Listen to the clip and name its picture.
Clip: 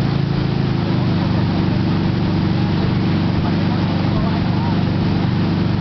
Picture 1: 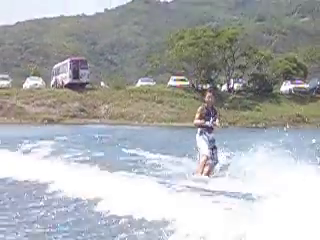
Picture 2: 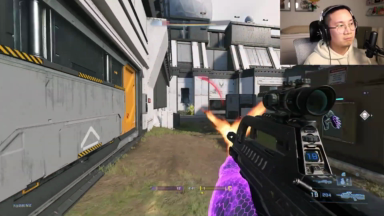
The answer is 1